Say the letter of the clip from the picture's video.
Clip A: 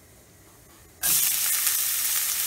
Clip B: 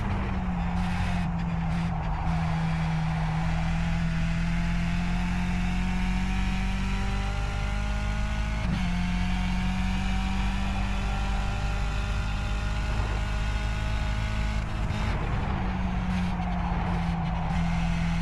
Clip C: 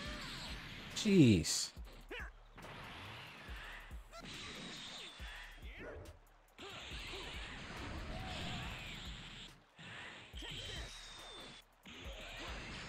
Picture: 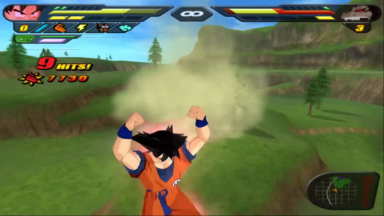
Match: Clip C